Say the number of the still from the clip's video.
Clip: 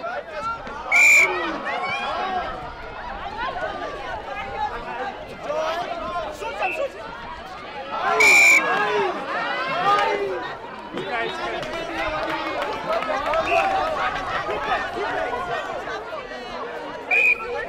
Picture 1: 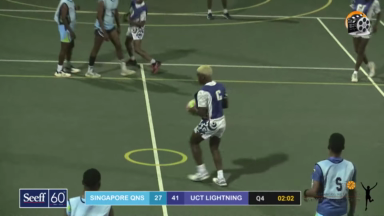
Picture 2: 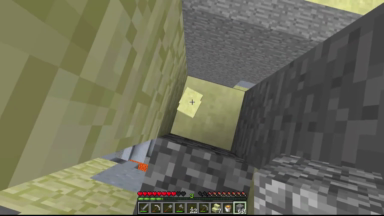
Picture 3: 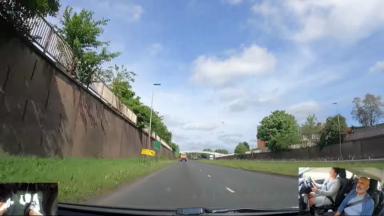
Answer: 1